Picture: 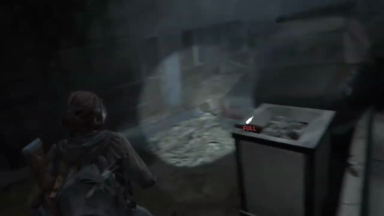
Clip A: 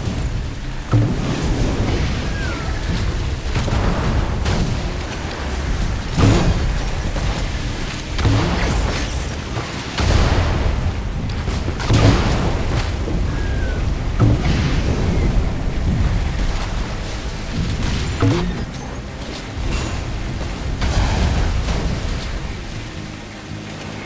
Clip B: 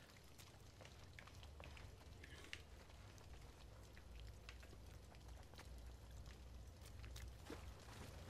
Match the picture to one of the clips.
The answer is B